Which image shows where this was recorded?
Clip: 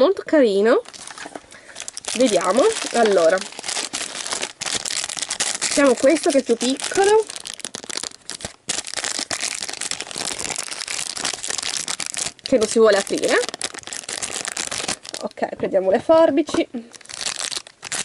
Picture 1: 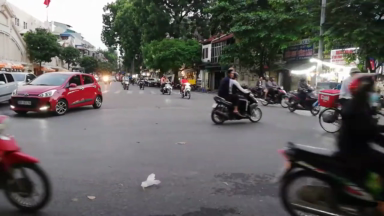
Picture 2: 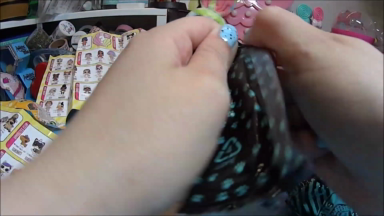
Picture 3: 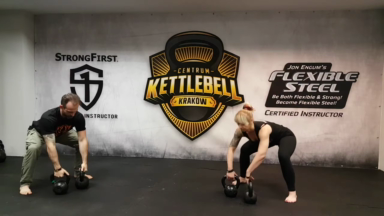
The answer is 2